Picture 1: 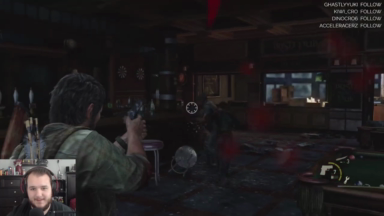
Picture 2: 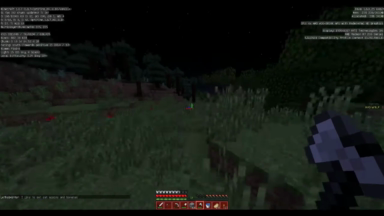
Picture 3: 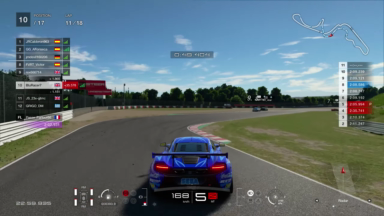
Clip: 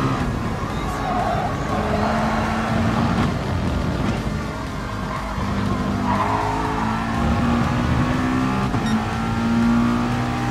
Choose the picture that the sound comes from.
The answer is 3